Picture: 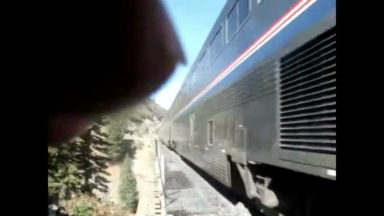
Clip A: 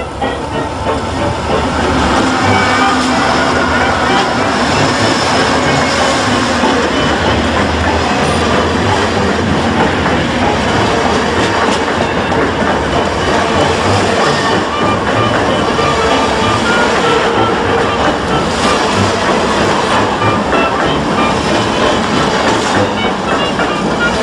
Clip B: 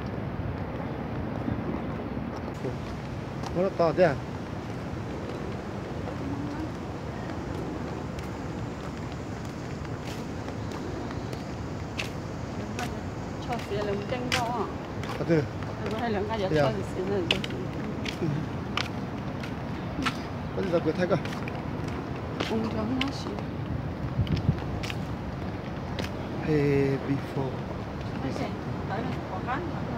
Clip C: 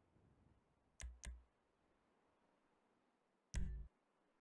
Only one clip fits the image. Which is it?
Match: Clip A